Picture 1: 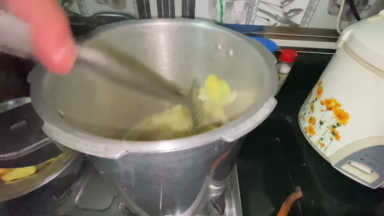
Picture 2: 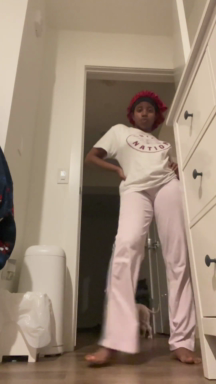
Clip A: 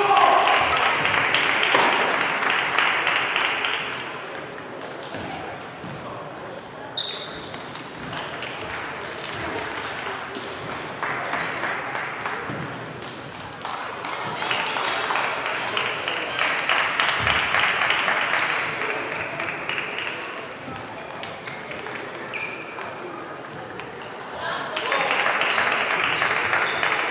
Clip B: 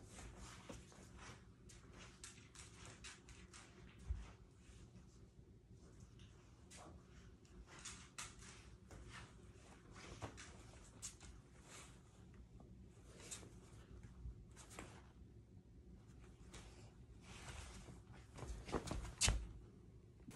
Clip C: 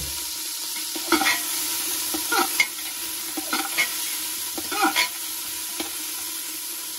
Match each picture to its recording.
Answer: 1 C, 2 B